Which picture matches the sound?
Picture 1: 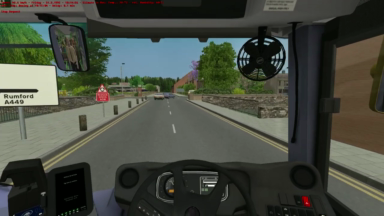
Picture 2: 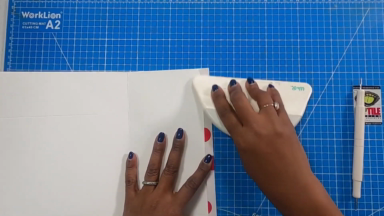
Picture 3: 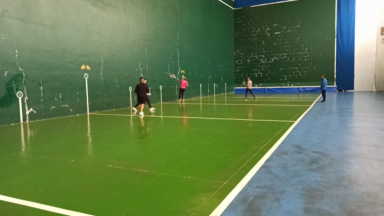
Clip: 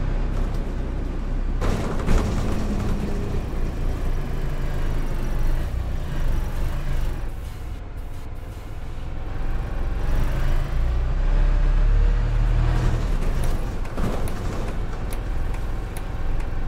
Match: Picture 1